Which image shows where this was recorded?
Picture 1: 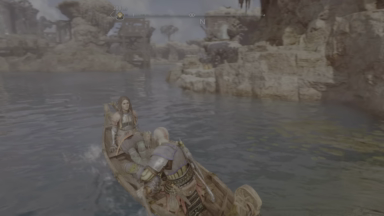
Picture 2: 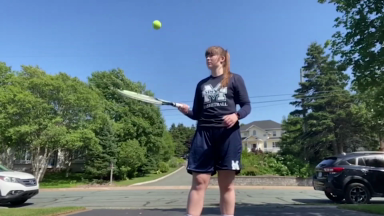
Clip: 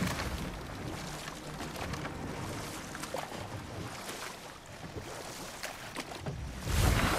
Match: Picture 1